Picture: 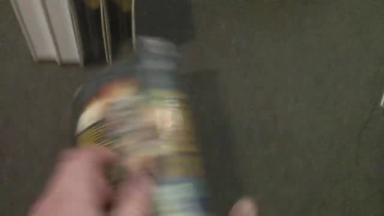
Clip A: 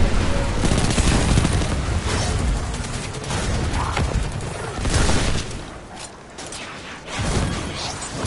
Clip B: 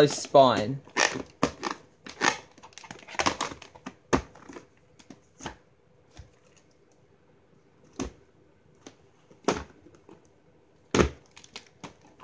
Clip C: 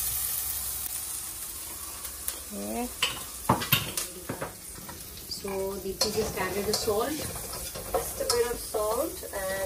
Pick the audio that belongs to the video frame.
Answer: B